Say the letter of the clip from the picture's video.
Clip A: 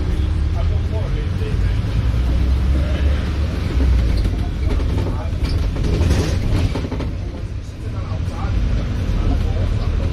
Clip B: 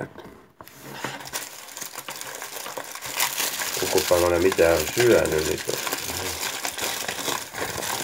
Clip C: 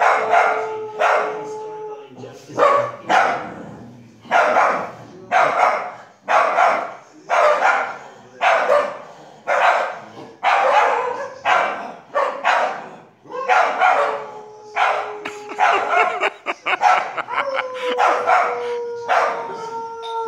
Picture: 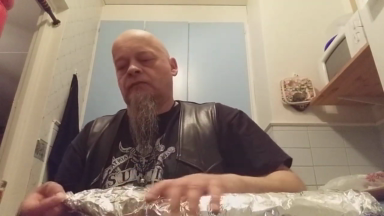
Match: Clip B